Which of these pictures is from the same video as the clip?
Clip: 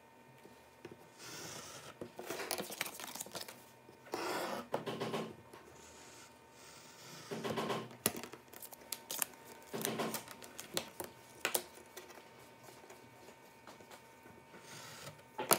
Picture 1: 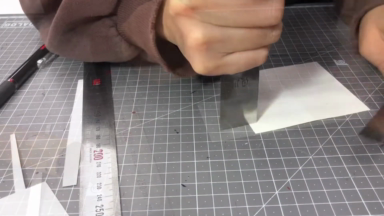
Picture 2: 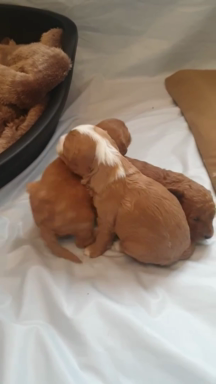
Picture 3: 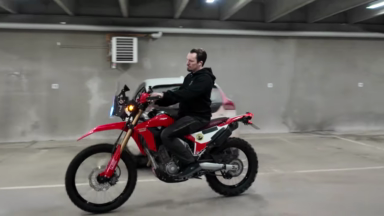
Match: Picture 1